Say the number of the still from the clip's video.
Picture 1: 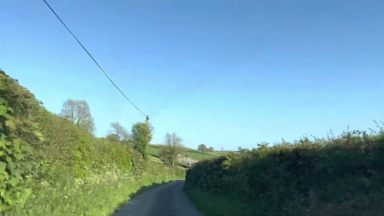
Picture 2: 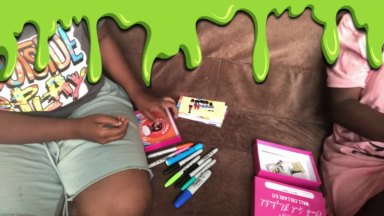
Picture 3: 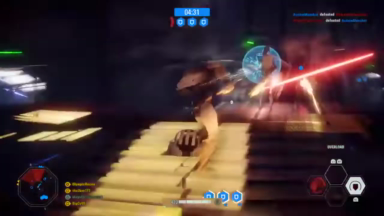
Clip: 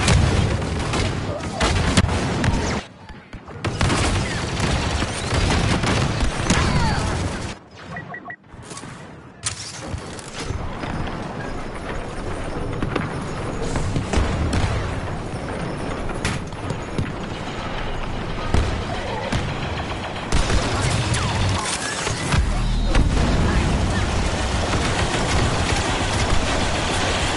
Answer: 3